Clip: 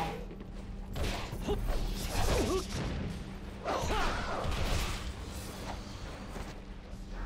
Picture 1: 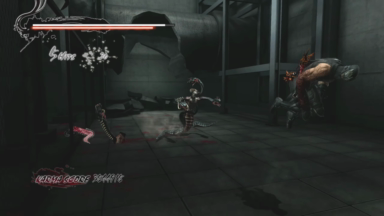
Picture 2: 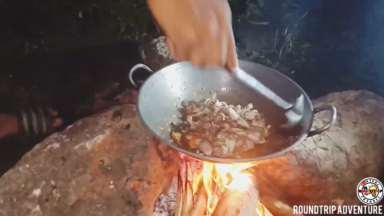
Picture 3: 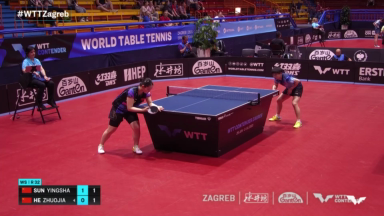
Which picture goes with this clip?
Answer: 1